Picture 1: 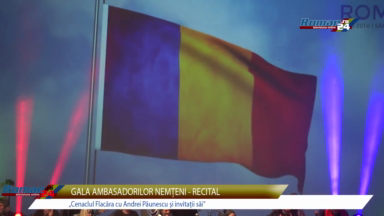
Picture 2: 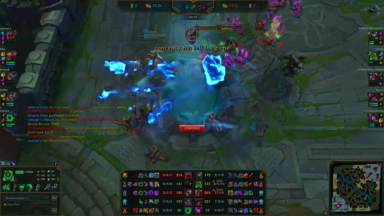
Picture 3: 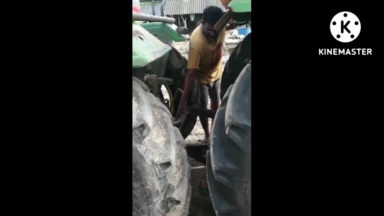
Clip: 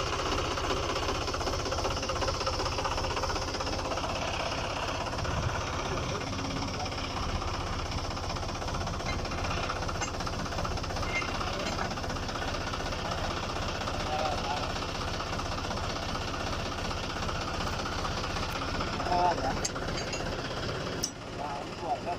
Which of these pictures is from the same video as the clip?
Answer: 3